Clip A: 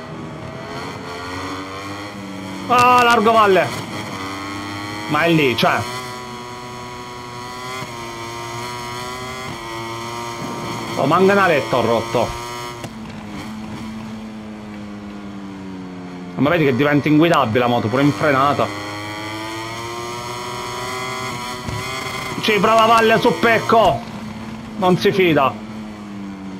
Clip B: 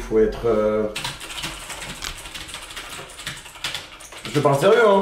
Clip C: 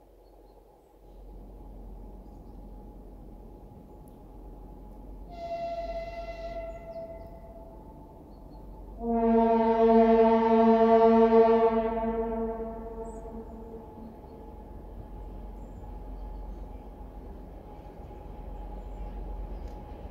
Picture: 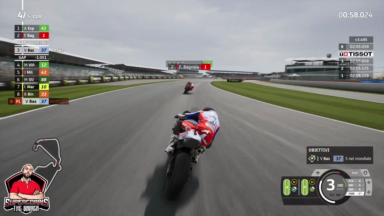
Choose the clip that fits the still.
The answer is A